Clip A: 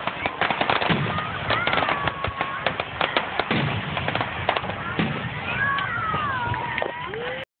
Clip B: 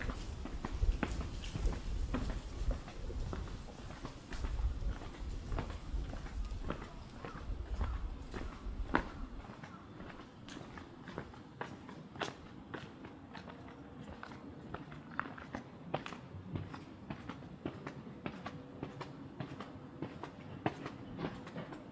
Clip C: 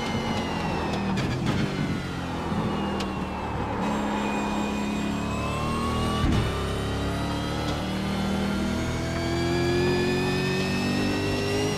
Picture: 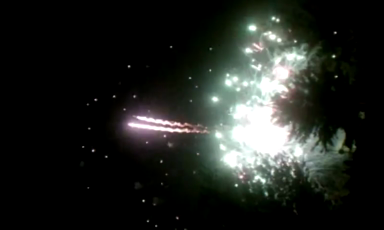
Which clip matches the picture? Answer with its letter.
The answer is A